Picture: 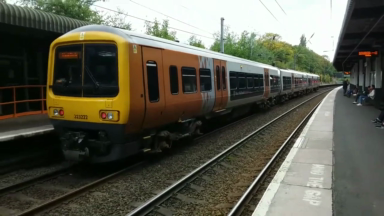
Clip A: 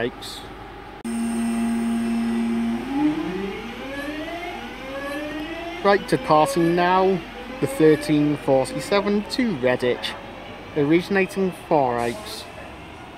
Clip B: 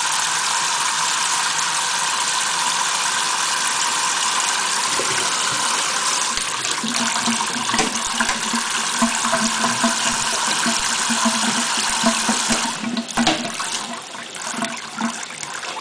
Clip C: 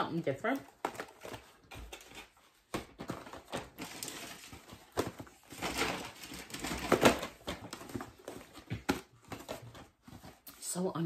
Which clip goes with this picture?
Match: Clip A